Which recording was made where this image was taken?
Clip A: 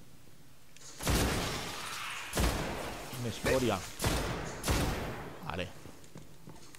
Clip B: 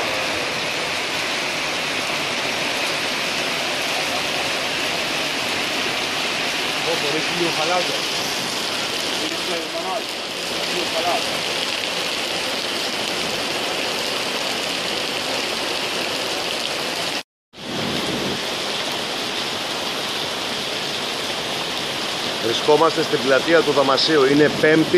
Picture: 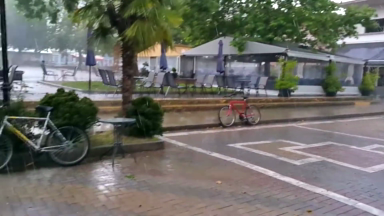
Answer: B